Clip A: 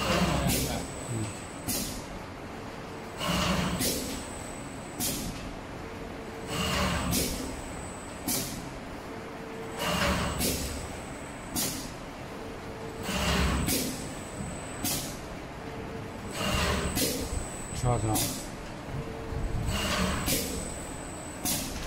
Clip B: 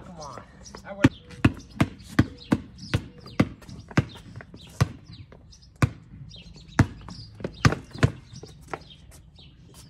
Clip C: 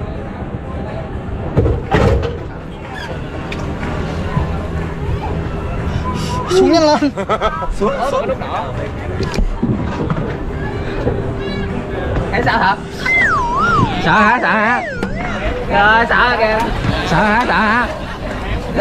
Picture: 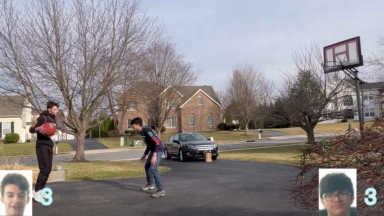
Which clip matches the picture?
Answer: B